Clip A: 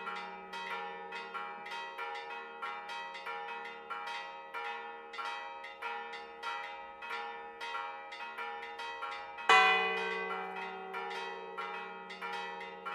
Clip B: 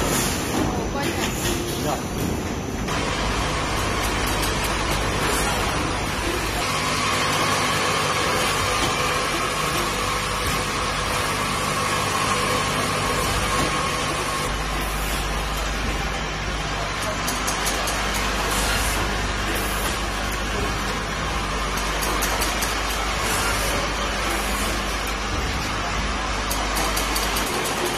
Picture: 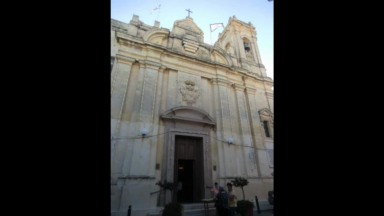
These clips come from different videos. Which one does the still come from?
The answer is A